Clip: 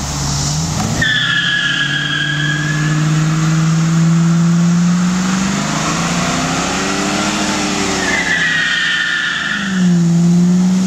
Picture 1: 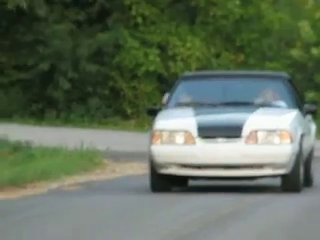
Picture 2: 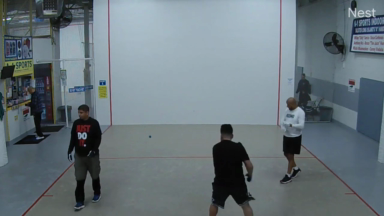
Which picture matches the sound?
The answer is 1